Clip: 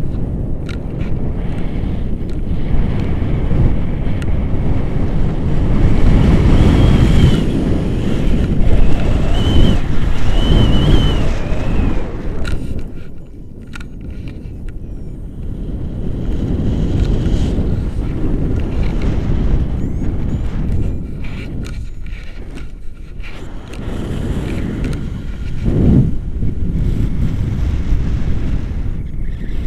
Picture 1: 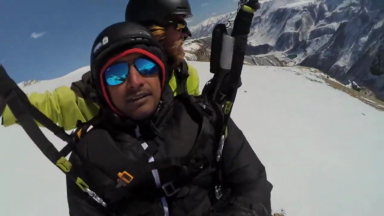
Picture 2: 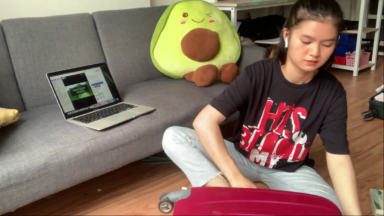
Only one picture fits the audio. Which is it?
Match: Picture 1